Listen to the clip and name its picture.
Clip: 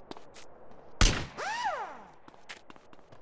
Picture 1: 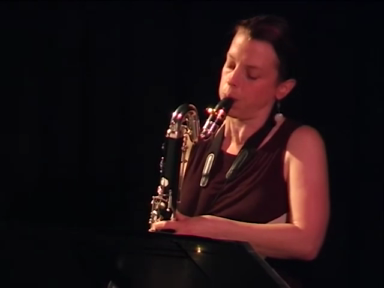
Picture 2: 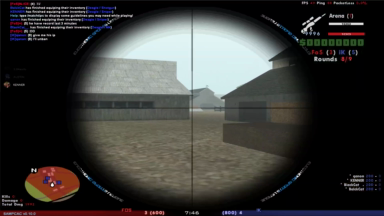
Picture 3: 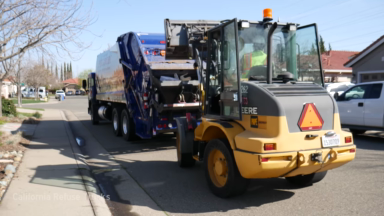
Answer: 2